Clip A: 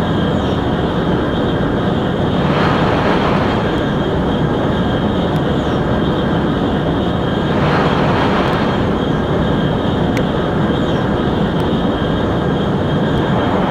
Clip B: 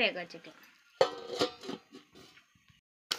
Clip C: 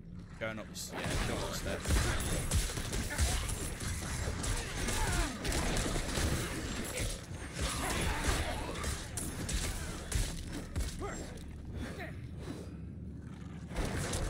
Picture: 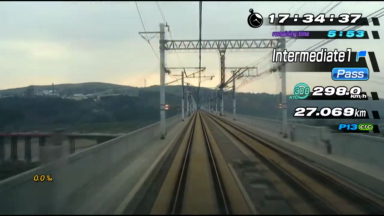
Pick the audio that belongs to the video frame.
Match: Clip A